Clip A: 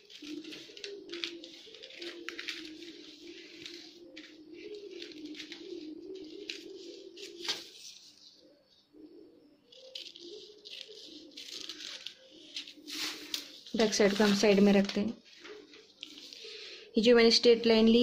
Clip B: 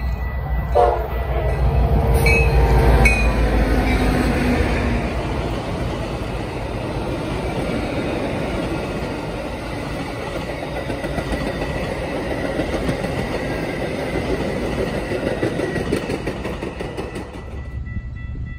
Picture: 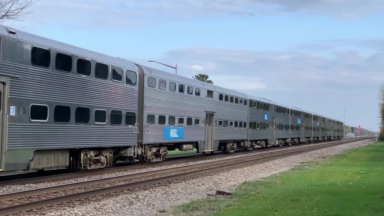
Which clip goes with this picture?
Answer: B